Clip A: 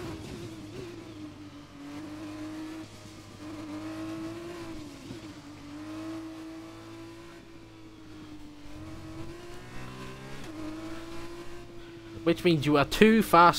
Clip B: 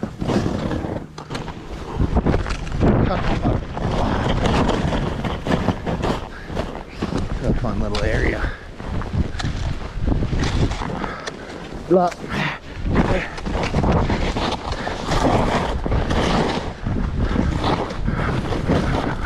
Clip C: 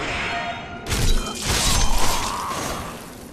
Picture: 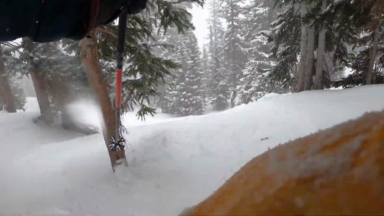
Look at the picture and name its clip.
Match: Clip B